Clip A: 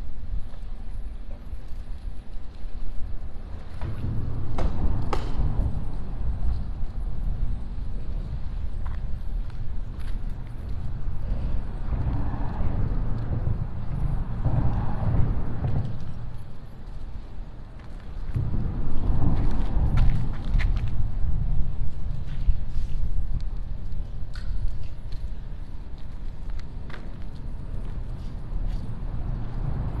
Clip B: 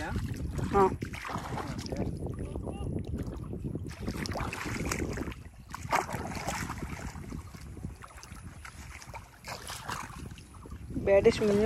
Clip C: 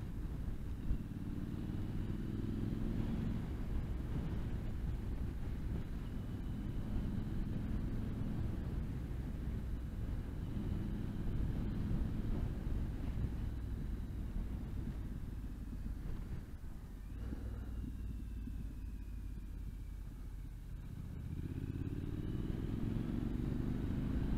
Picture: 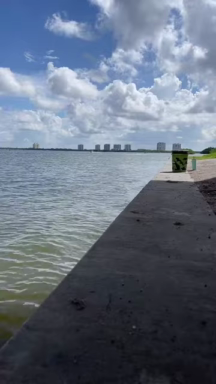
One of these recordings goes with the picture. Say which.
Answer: A